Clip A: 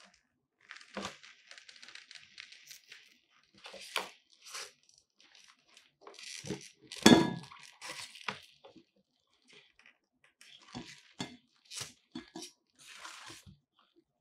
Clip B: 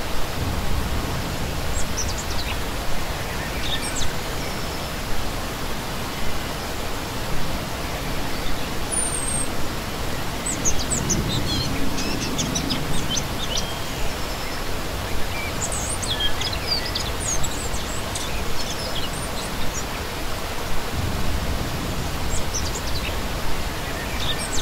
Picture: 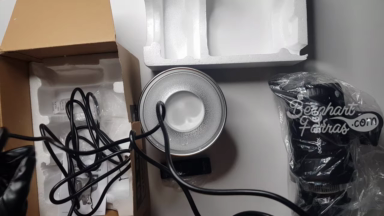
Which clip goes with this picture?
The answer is A